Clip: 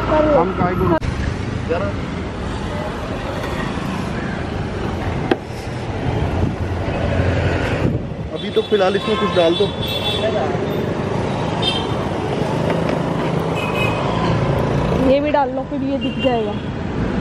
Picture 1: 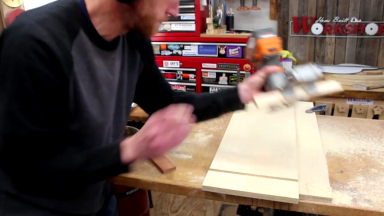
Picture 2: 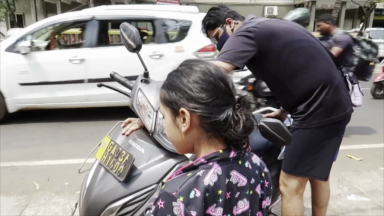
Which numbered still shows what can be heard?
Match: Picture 2